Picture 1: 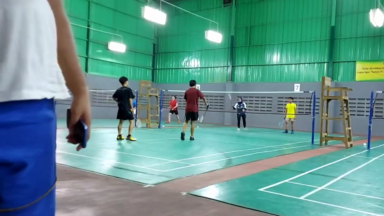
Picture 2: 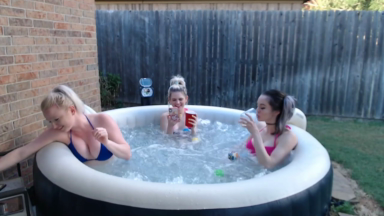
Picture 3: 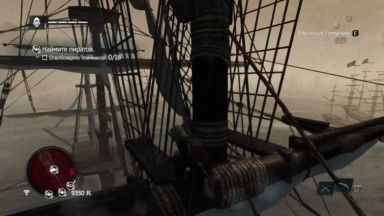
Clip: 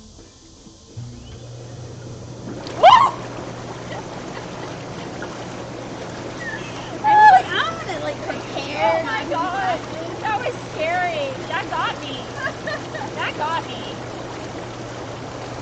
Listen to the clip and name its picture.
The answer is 2